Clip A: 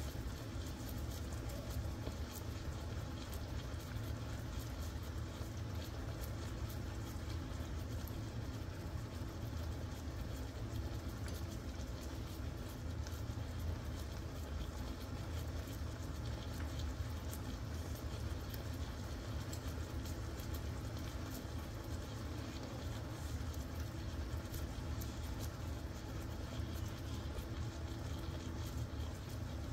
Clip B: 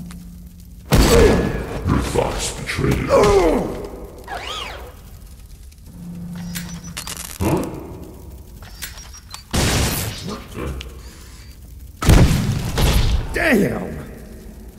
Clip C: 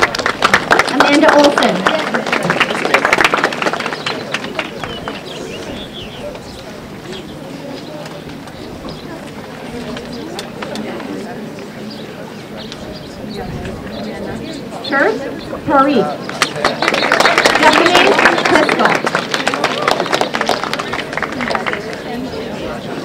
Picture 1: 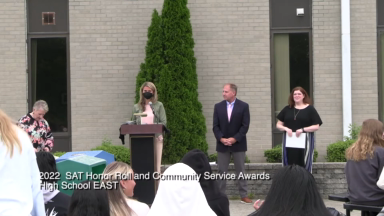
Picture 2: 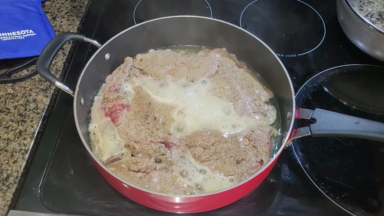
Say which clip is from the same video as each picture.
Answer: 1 C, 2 A